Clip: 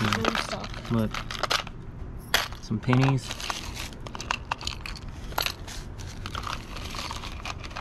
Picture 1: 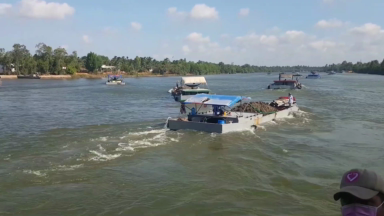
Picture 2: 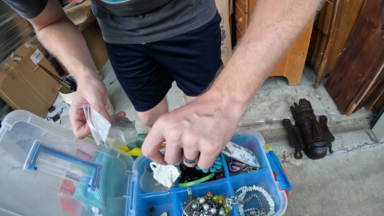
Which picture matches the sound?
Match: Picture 2